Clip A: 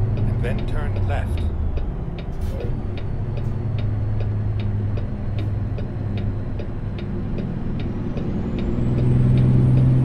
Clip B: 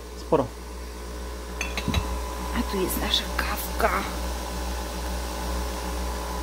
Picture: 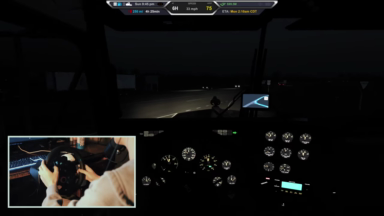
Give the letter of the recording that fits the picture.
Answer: A